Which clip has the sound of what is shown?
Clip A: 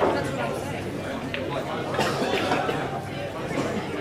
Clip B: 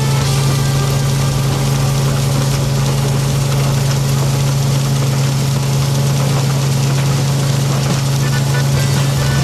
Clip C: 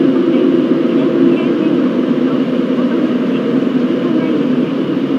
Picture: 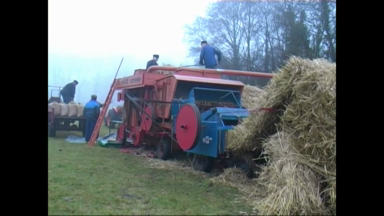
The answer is B